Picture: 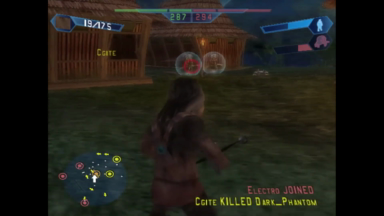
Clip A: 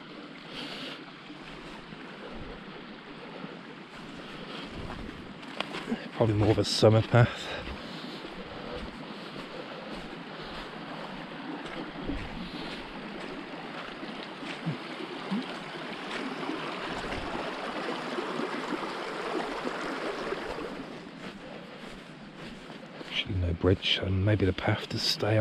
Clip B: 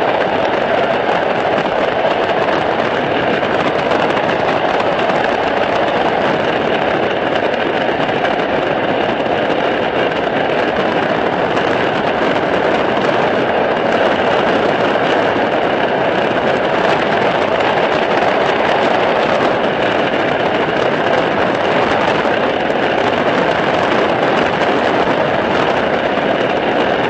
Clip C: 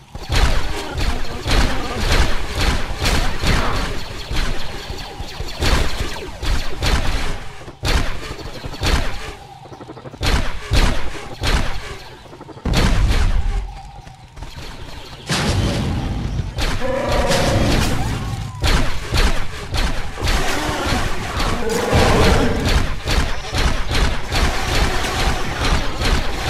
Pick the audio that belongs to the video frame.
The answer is C